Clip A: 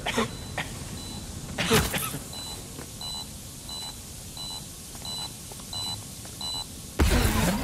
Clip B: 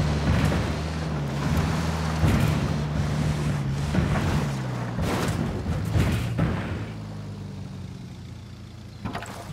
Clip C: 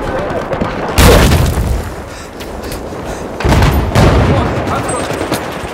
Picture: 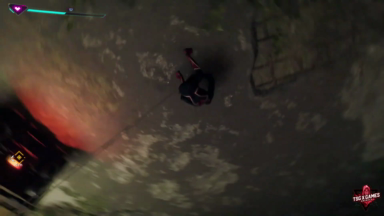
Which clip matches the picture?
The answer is A